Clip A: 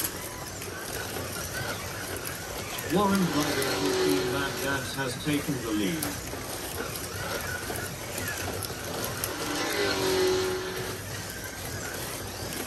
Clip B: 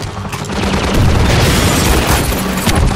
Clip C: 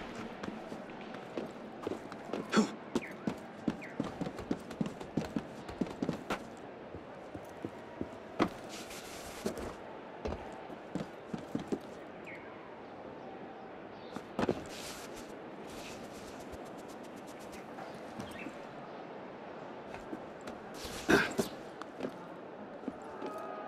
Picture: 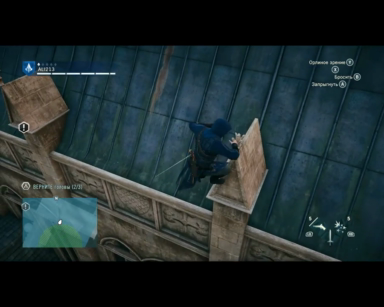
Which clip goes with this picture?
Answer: C